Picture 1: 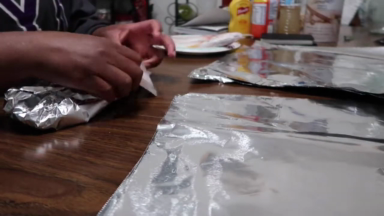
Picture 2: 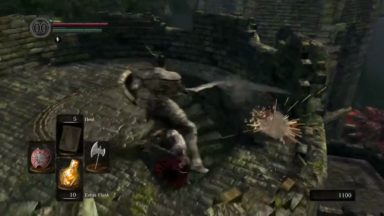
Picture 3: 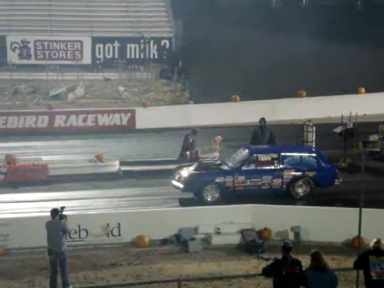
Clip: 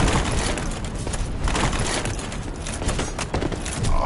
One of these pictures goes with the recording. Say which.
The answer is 2